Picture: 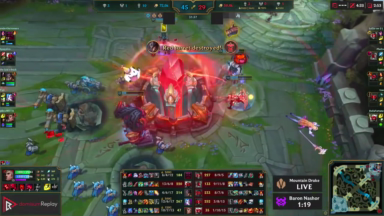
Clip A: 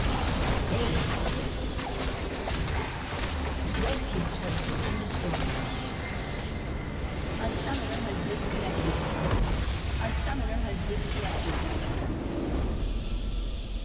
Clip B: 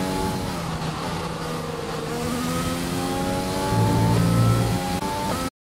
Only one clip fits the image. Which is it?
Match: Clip A